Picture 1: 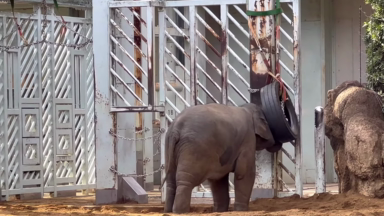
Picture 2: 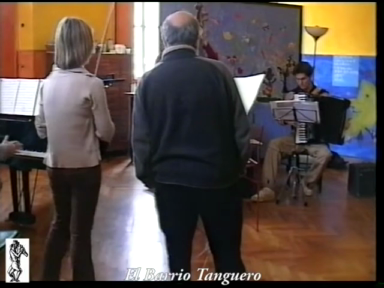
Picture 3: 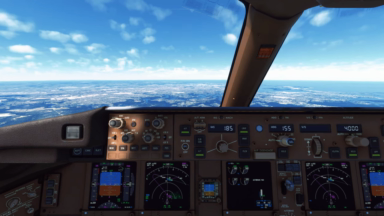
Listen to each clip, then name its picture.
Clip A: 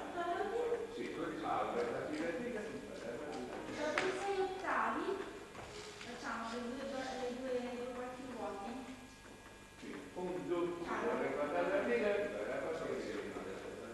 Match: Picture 2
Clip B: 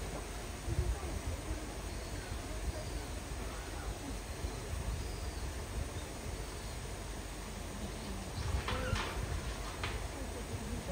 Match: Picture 1